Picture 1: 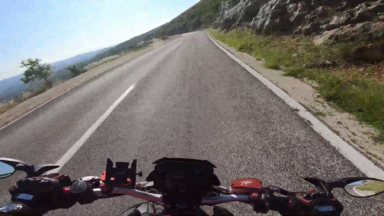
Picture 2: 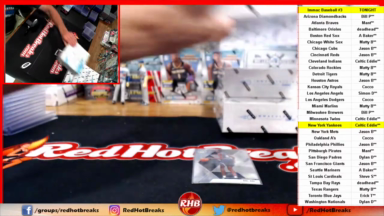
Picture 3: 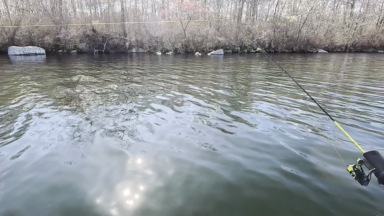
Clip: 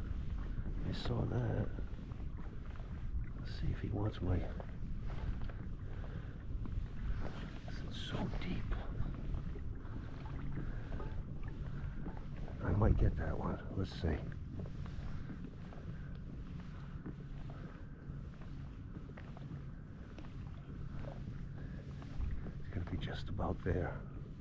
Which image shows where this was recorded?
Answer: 3